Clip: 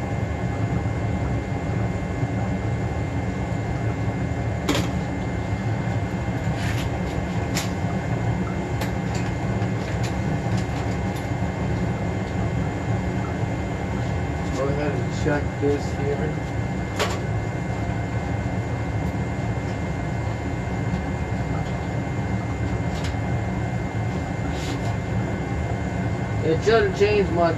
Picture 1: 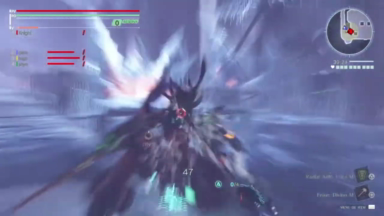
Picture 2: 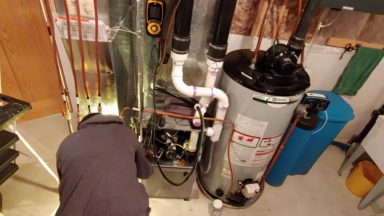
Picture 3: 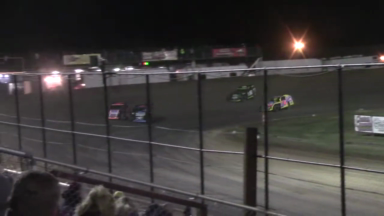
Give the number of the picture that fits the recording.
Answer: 2